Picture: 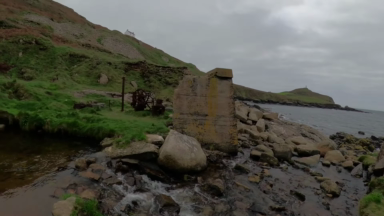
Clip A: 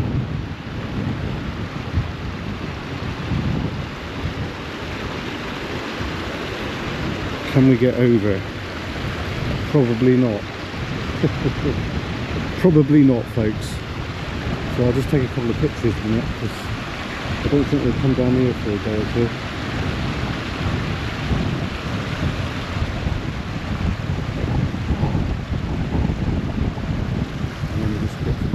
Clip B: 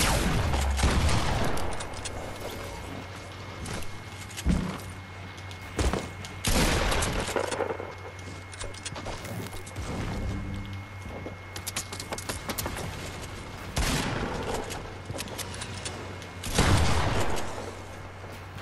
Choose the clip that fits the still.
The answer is A